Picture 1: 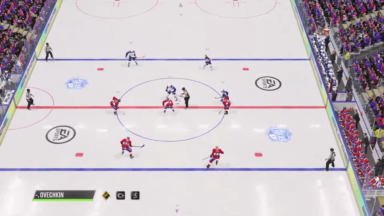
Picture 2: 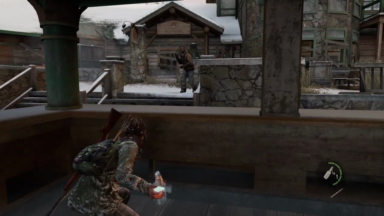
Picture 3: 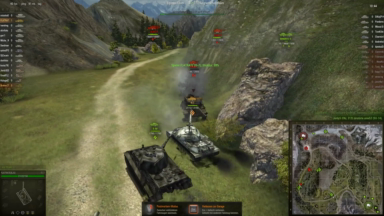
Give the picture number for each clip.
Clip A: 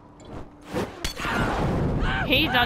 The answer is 2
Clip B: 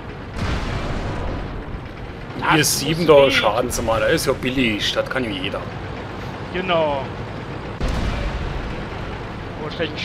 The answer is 3